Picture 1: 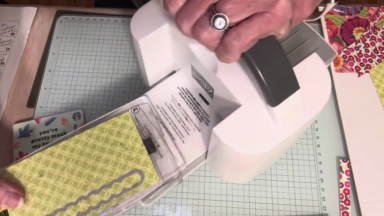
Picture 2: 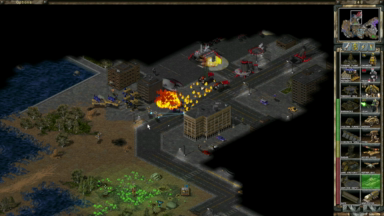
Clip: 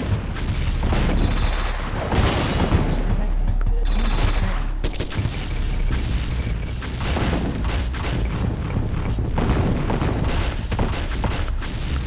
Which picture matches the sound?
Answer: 2